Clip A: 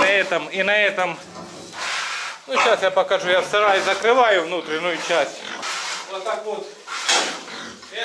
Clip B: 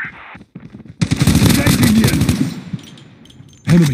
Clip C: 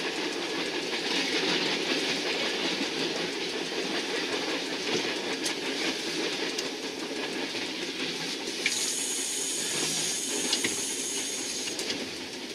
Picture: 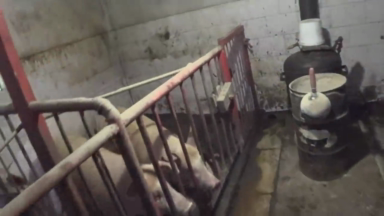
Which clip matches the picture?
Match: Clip A